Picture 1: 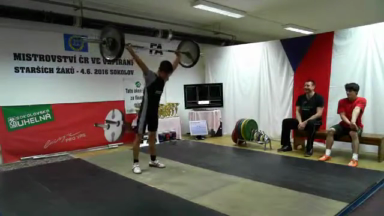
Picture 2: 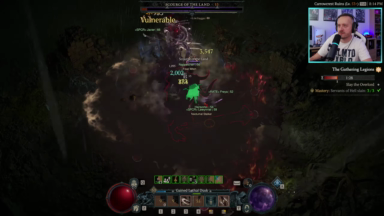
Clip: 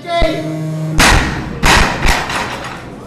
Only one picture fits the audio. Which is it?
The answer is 1